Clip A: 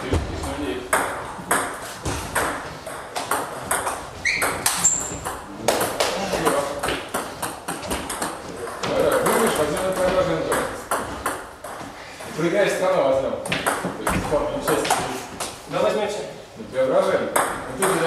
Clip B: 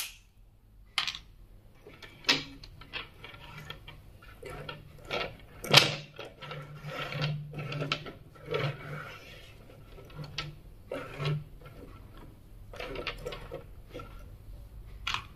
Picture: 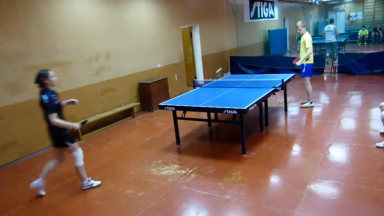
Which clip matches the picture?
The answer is A